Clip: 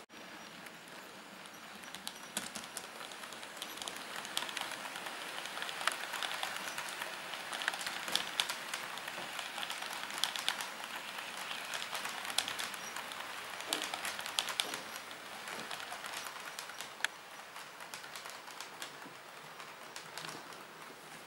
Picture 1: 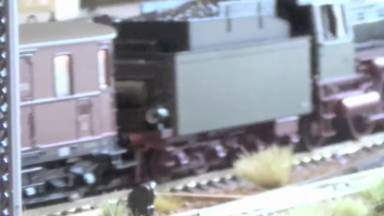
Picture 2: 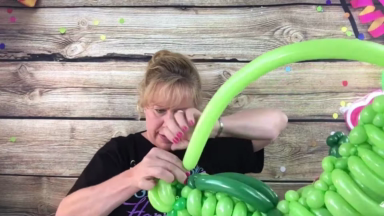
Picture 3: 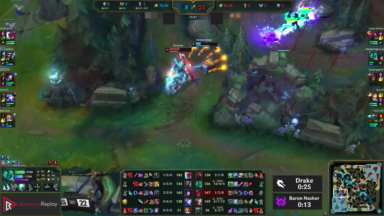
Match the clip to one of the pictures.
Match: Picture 1